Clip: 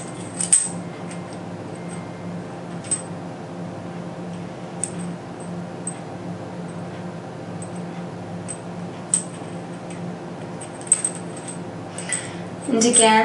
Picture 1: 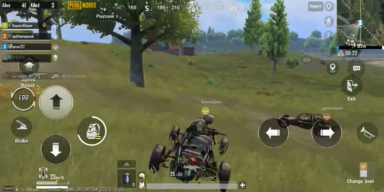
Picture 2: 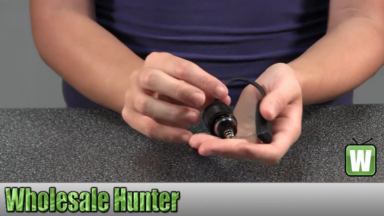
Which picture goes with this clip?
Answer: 2